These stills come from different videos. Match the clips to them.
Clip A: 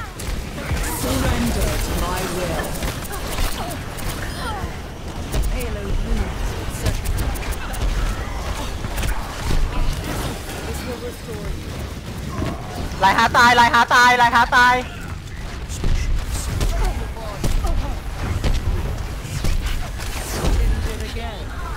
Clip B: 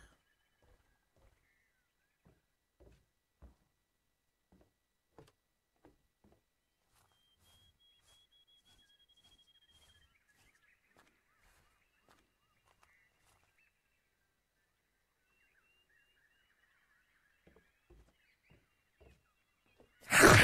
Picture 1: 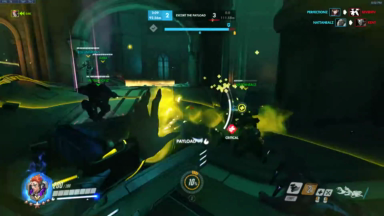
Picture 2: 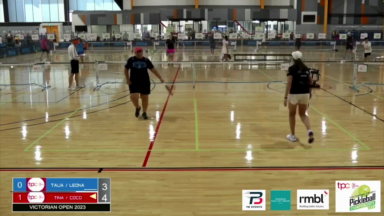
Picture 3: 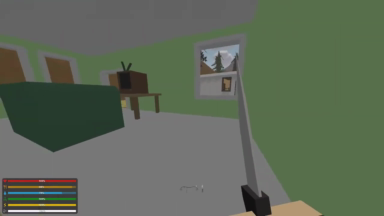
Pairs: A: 1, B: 3